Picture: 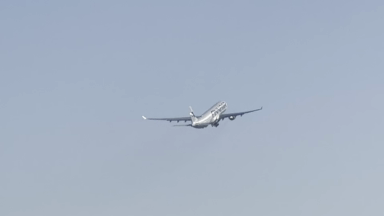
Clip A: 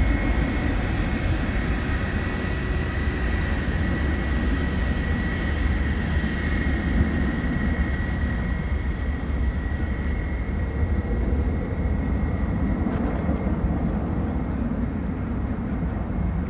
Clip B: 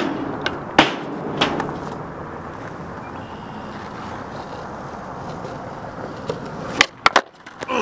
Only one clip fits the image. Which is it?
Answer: A